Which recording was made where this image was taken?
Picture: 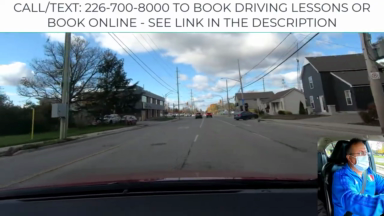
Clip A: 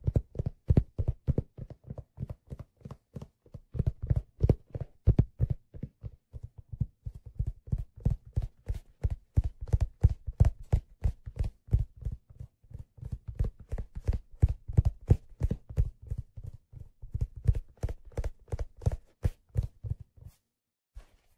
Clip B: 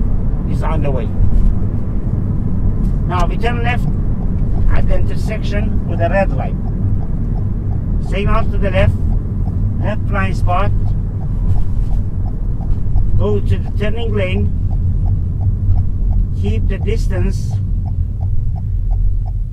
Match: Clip B